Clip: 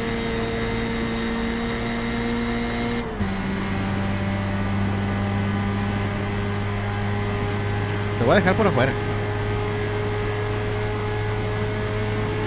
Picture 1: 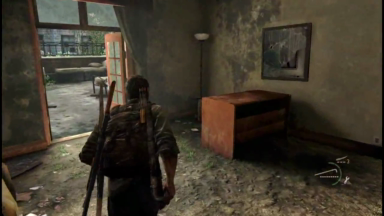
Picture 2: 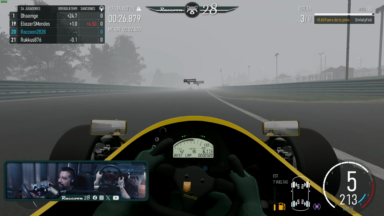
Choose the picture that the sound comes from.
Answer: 2